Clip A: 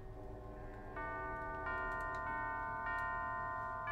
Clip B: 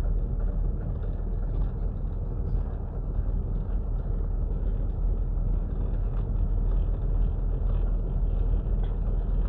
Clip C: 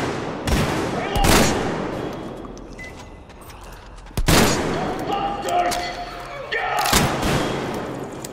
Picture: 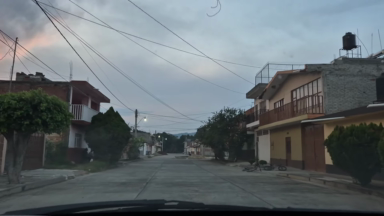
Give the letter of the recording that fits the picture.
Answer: B